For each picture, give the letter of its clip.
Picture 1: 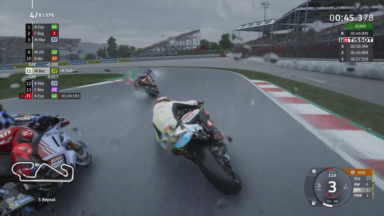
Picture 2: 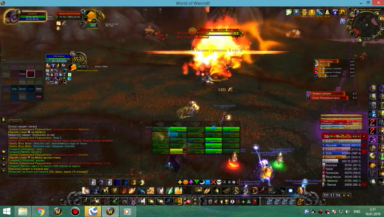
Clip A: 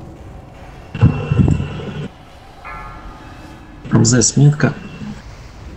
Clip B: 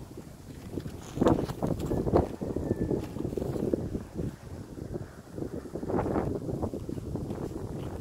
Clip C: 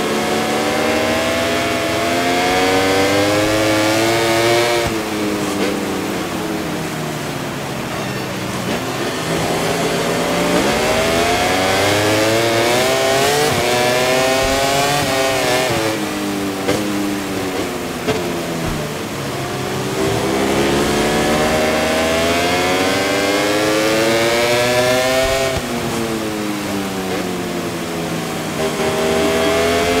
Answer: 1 C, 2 A